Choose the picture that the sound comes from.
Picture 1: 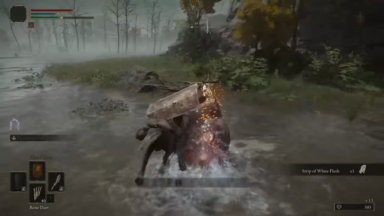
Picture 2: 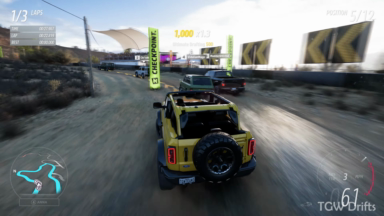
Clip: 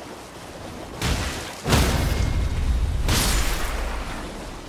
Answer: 1